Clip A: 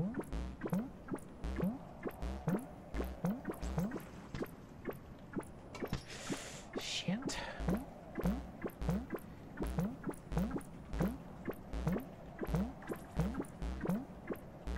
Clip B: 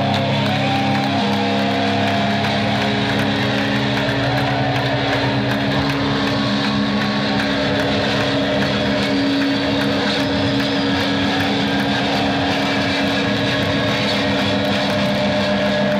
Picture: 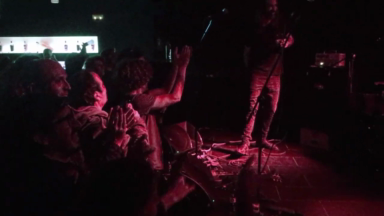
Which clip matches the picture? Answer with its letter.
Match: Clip B